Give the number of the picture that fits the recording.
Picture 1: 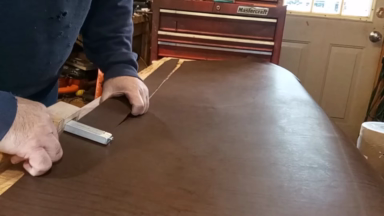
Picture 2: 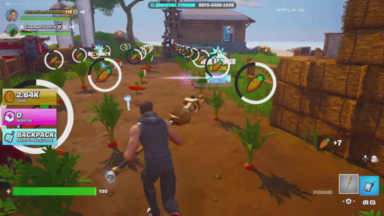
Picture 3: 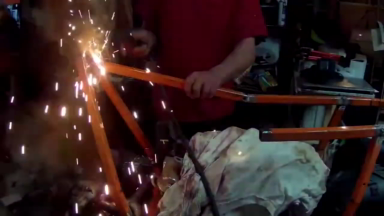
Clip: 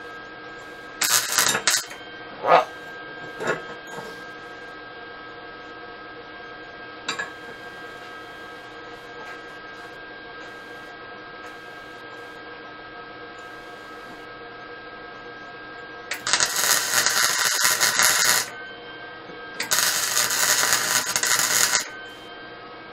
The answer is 3